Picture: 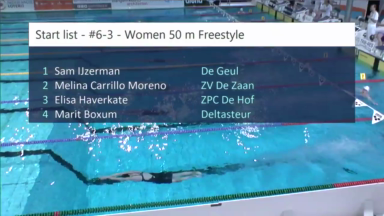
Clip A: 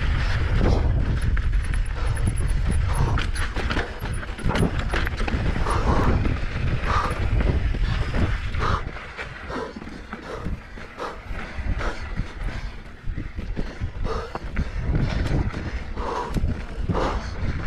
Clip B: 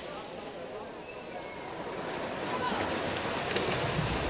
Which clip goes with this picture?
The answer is B